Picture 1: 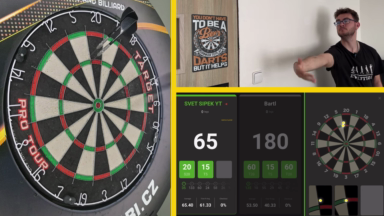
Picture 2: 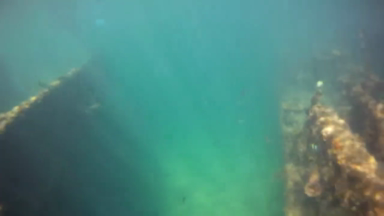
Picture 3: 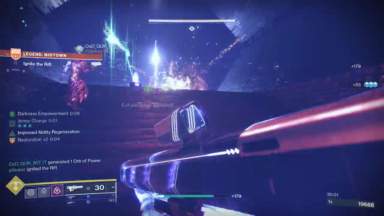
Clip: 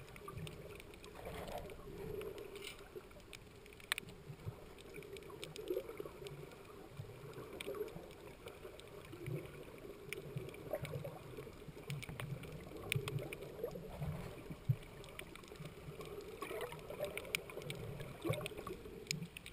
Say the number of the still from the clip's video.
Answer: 2